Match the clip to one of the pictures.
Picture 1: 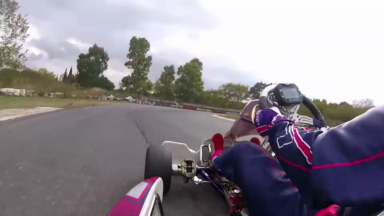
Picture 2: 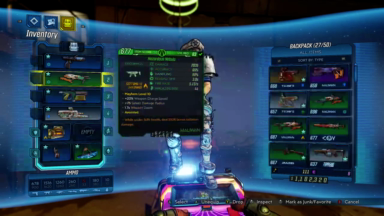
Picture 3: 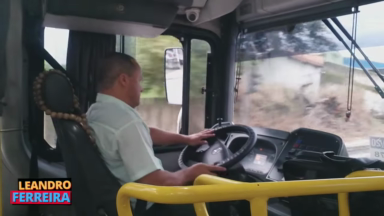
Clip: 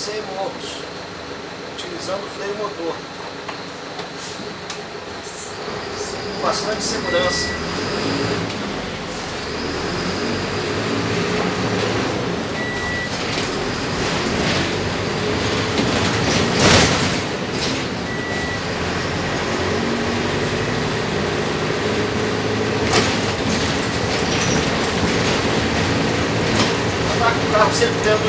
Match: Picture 3